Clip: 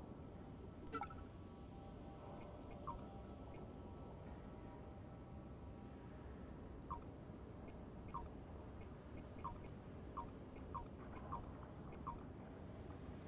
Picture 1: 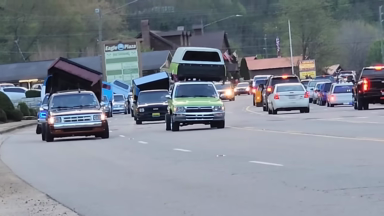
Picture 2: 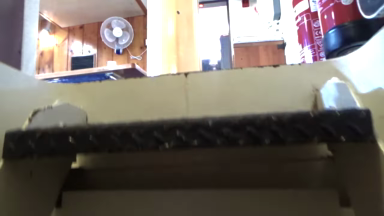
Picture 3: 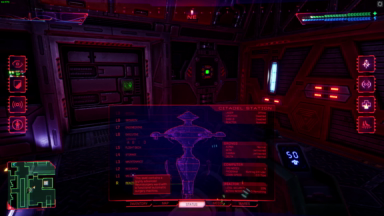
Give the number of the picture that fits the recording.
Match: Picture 3